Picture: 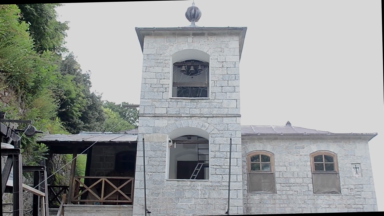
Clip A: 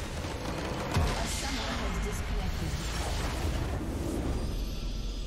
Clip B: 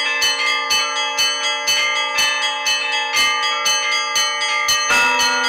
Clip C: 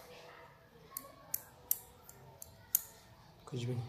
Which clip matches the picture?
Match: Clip B